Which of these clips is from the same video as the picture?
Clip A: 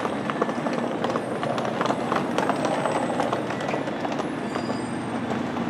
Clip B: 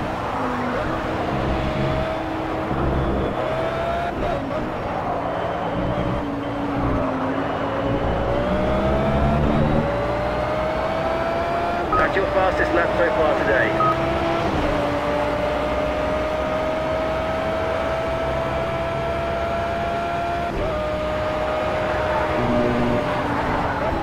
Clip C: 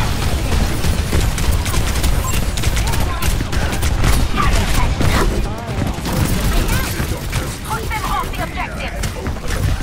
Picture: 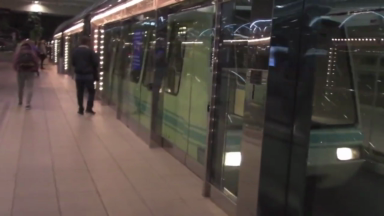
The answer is A